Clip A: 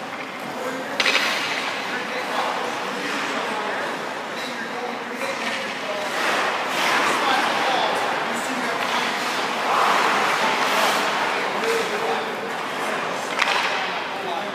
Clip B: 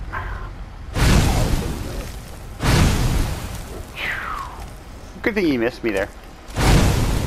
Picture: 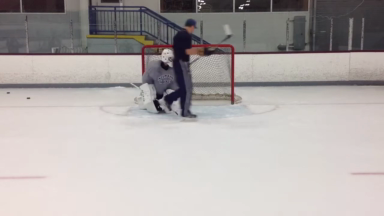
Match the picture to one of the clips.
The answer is A